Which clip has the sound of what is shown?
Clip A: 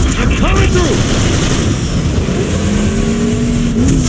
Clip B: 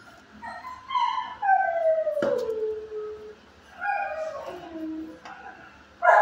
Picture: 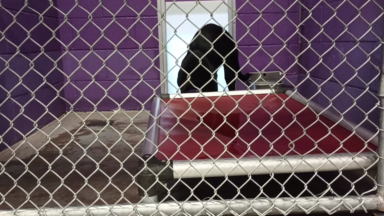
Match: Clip B